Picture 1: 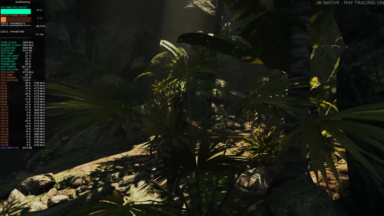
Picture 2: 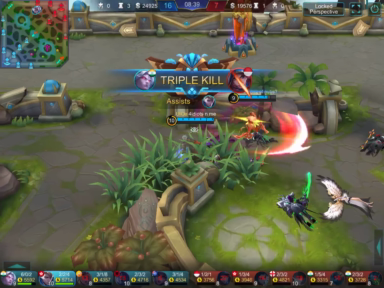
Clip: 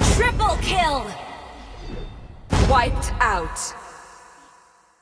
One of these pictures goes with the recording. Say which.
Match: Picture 2